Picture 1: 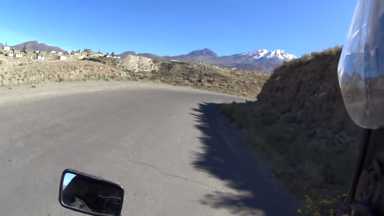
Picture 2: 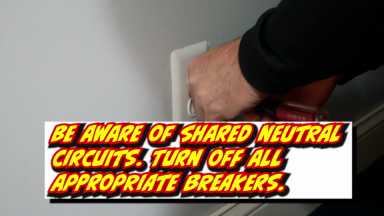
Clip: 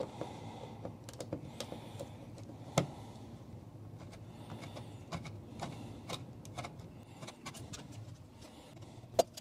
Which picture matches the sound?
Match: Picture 2